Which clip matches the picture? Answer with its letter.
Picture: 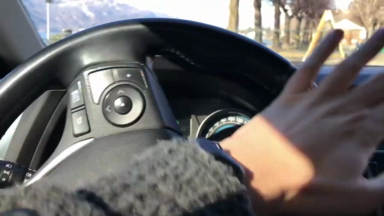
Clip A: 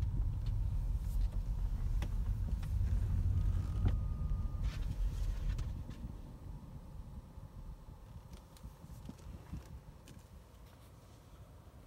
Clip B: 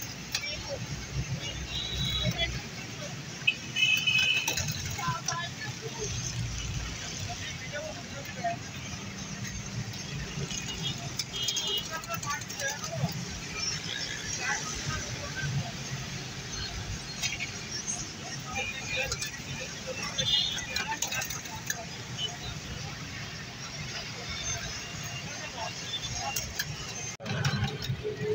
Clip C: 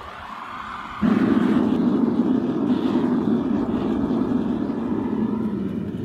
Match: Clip A